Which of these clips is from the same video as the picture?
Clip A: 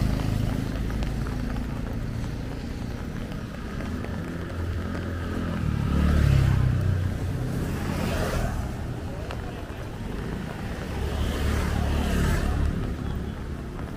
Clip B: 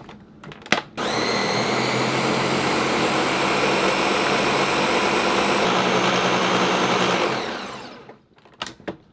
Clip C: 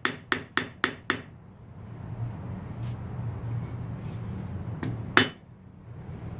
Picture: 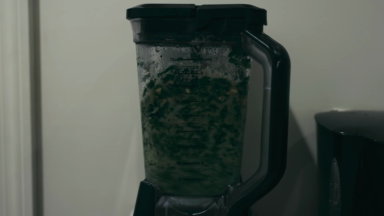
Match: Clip B